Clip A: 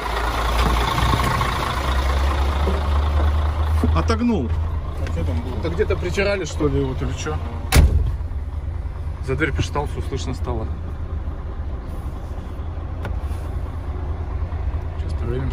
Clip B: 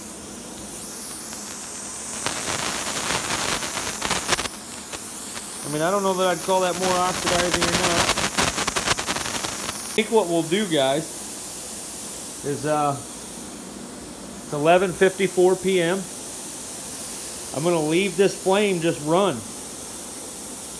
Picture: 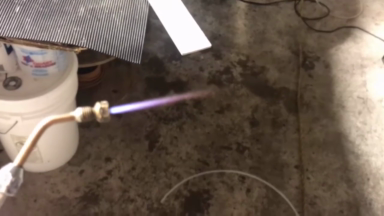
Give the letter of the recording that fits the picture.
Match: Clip B